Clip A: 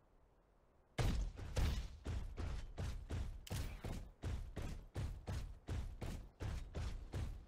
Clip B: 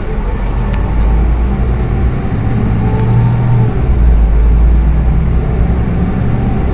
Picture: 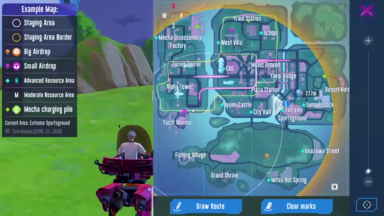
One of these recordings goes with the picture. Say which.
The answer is A